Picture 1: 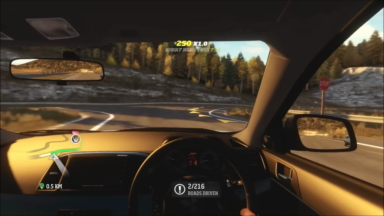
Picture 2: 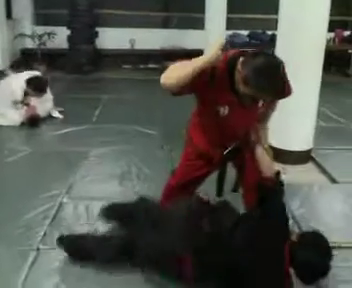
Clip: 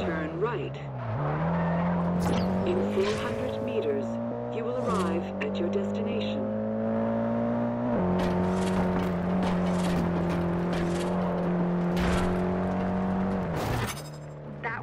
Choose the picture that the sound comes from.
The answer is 1